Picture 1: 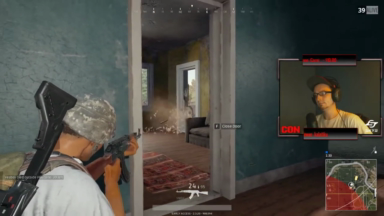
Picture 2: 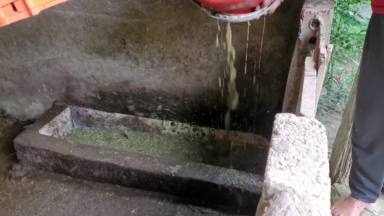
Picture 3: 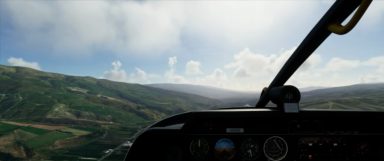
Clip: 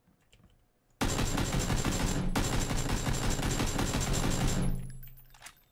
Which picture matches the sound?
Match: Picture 1